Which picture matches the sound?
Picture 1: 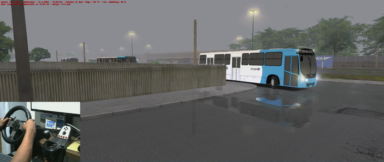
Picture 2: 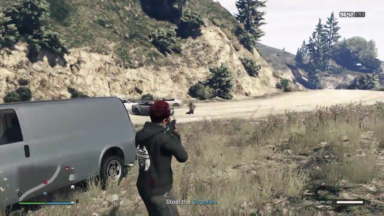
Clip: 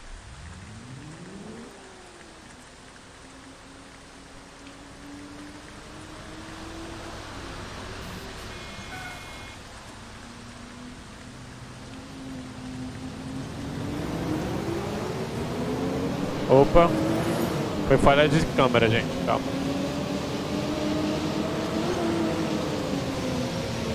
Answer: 1